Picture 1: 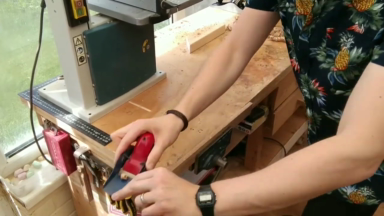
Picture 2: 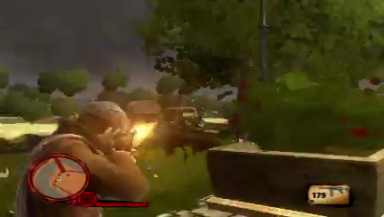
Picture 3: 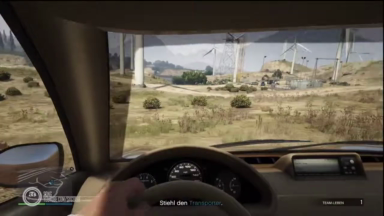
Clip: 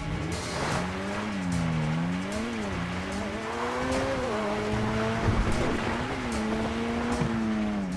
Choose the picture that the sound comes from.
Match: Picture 3